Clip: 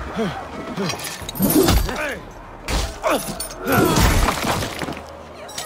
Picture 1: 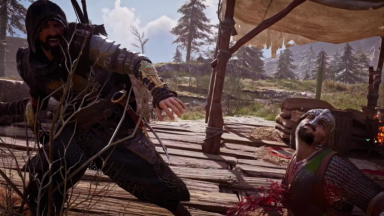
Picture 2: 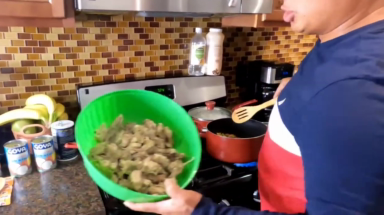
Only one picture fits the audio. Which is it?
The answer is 1